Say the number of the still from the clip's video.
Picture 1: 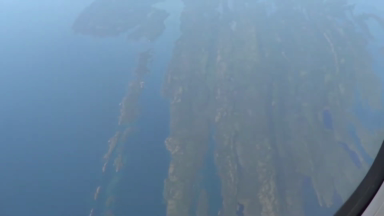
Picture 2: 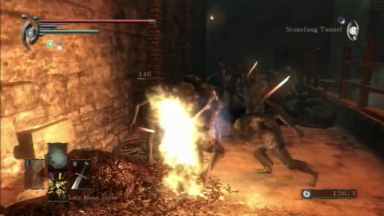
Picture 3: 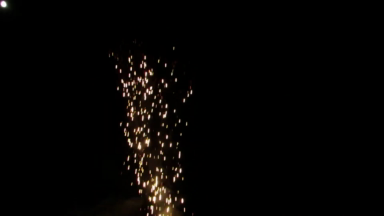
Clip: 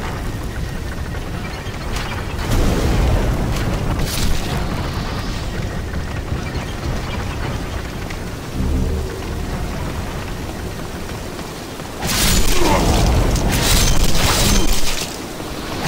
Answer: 2